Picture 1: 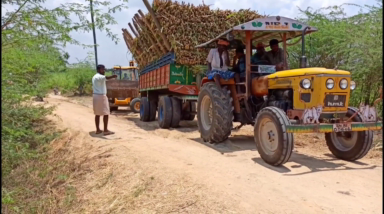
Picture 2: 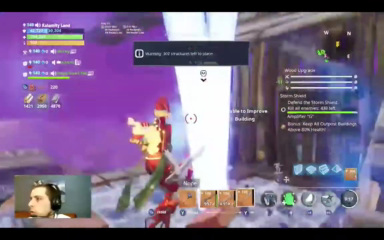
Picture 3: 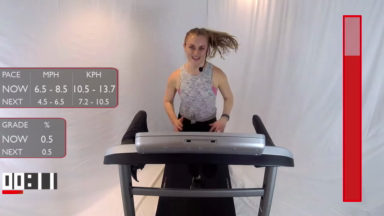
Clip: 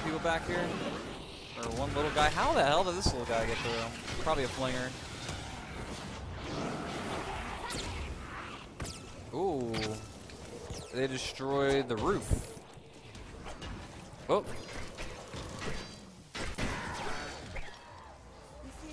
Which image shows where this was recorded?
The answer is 2